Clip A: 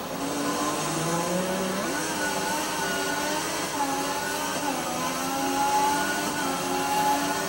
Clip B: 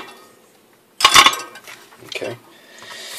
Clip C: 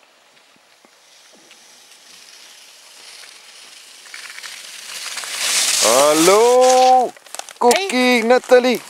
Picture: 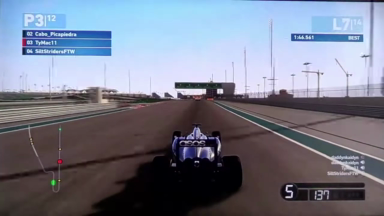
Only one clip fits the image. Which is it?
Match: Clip A